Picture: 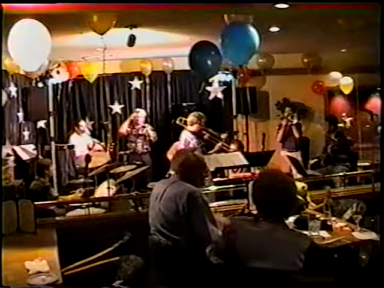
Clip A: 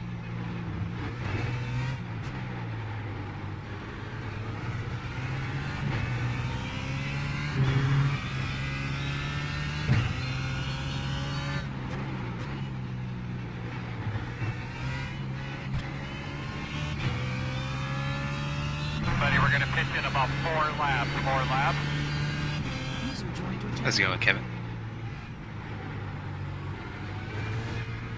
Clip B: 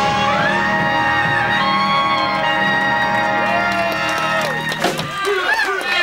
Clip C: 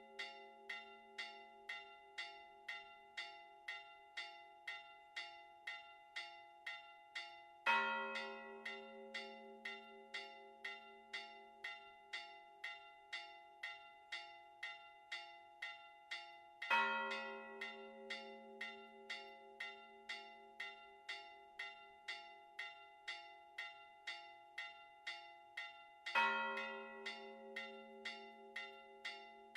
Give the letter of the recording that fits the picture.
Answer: B